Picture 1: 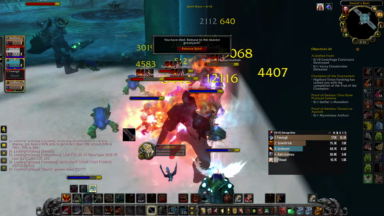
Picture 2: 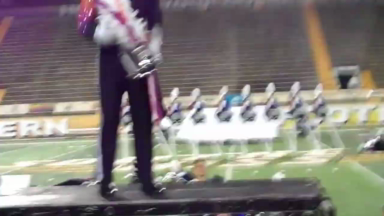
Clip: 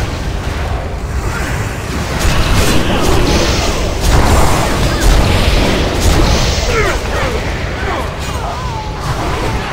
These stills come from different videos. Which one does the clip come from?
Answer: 1